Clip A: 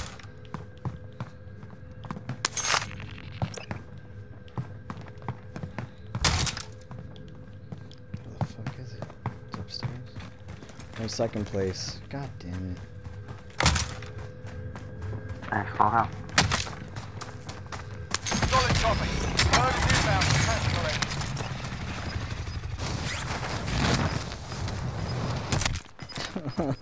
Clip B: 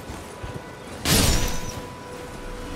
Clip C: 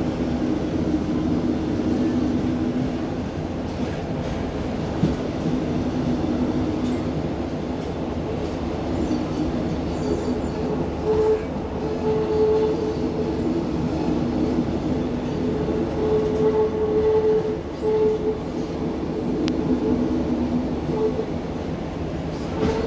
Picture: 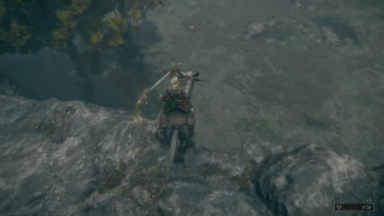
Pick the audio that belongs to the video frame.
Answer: B